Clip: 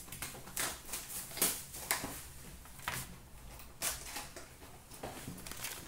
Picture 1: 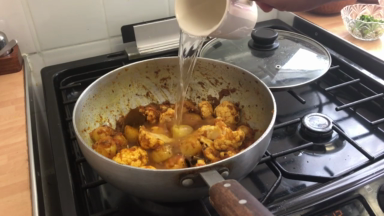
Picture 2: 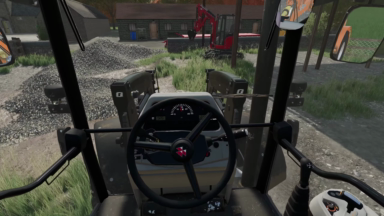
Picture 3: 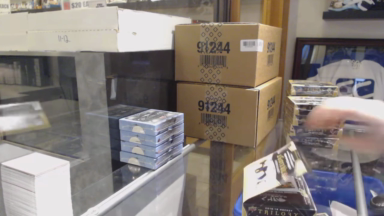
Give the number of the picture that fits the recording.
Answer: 3